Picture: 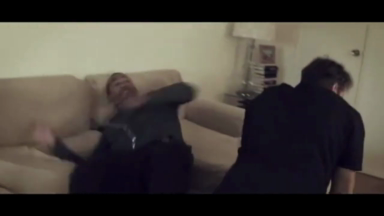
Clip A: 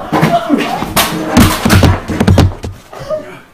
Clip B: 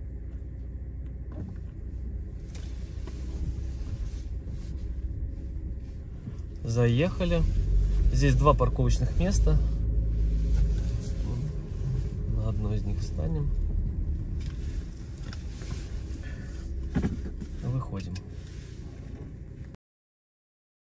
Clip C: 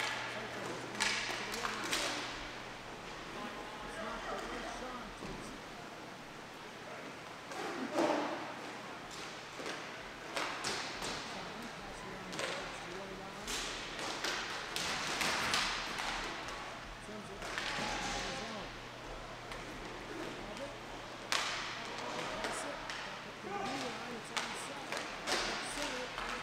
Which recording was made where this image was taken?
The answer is A